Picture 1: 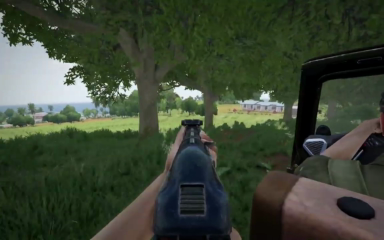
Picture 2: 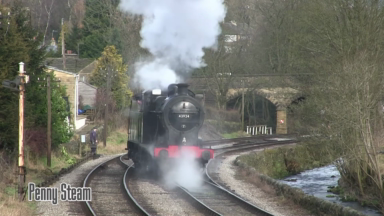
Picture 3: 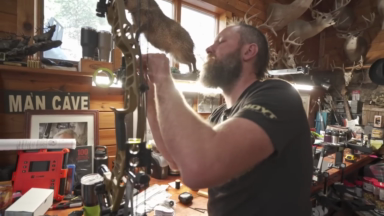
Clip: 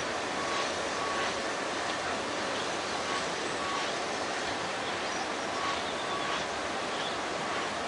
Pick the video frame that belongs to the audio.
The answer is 2